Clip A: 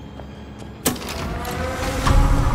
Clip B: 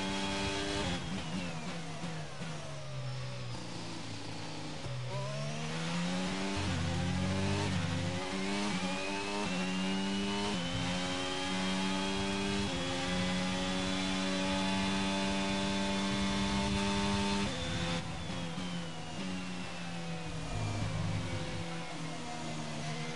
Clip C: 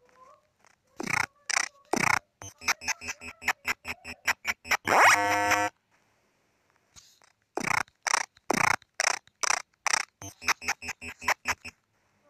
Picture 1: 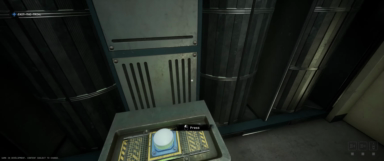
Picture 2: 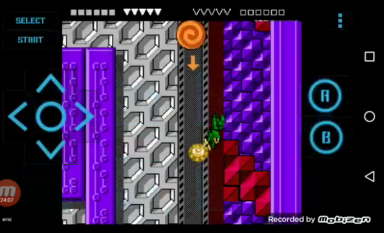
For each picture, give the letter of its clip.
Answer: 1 A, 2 C